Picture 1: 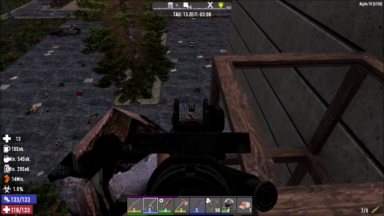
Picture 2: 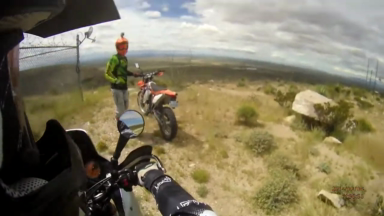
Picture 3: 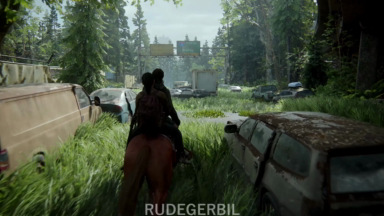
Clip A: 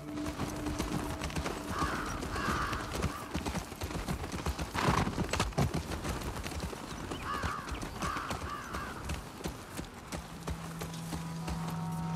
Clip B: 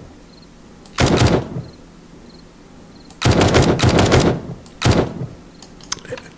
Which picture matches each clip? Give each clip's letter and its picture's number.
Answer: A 3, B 1